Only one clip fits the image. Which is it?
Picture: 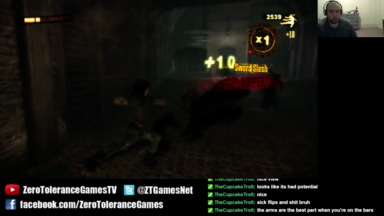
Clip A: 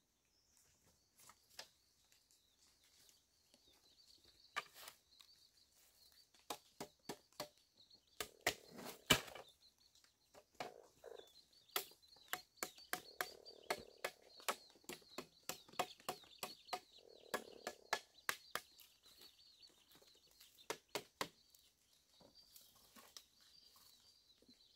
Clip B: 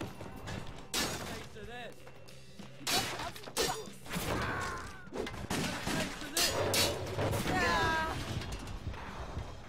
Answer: B